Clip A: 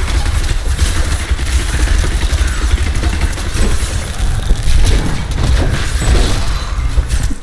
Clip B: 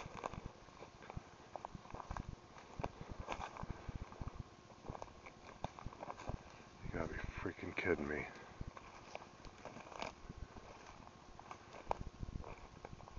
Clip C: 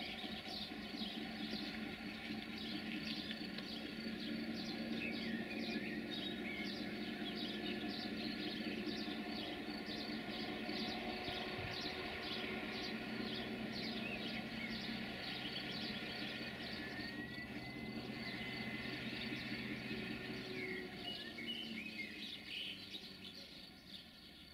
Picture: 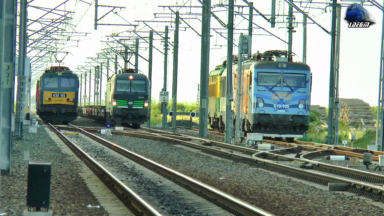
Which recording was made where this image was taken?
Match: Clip C